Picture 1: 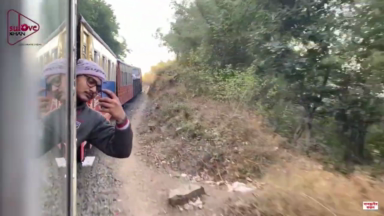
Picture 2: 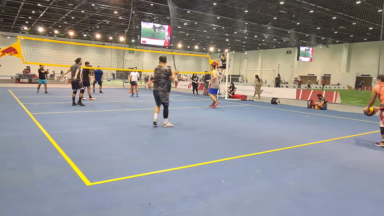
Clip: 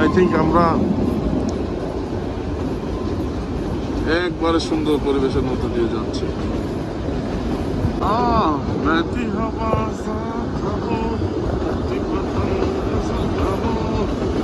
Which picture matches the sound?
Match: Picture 1